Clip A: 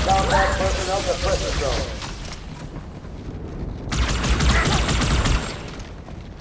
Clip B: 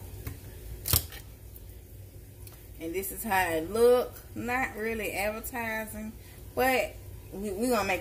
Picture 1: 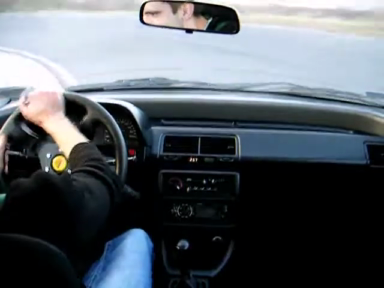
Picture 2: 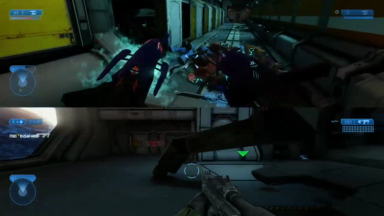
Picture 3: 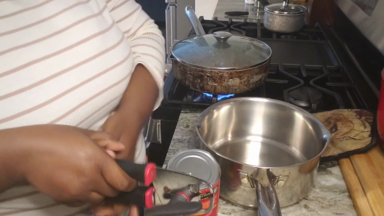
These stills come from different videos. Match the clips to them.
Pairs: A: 2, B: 3